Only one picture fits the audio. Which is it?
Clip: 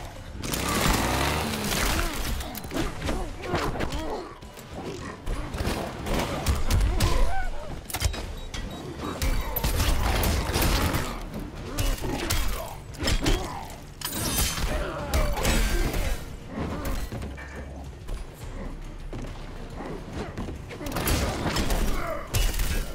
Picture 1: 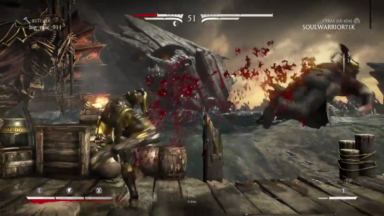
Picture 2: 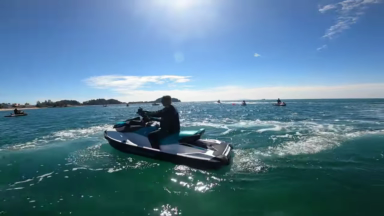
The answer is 1